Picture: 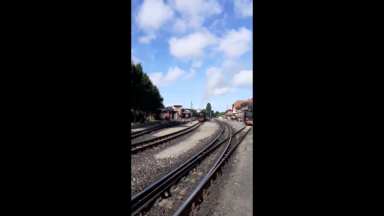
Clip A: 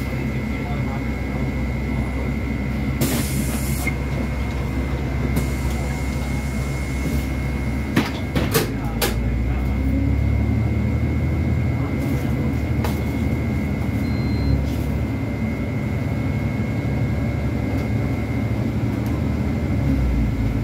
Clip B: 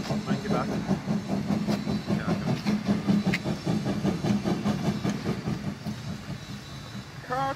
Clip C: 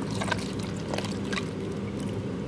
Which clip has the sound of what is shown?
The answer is B